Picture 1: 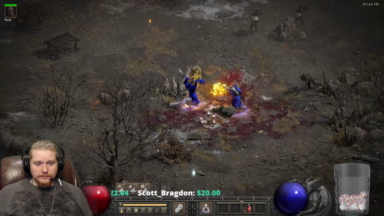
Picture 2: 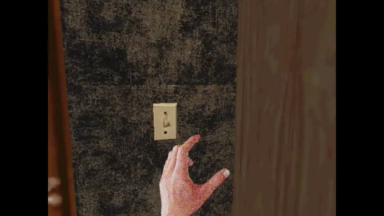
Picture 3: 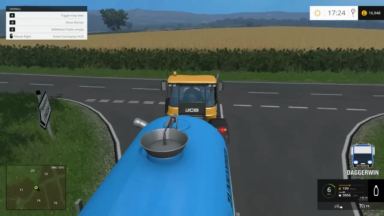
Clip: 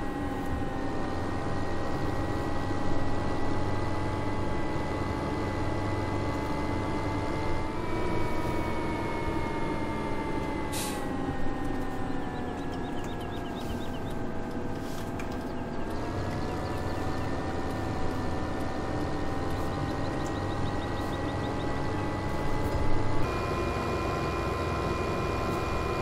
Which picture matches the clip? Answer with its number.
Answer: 3